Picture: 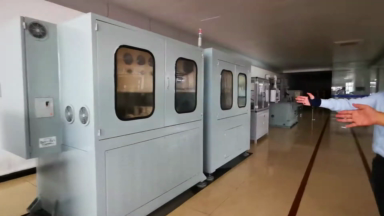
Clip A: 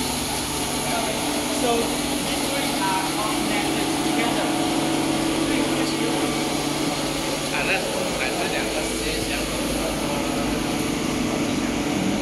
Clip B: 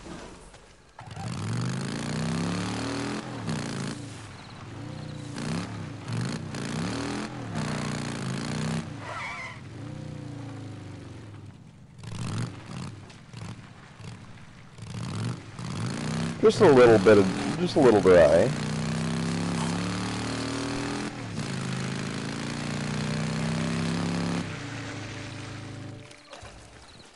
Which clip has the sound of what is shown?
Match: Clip A